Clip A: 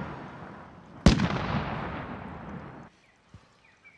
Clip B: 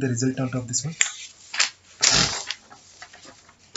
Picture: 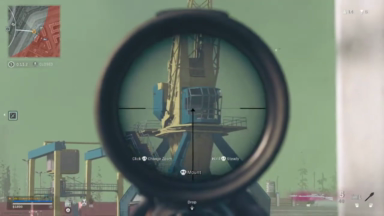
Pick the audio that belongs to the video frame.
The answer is A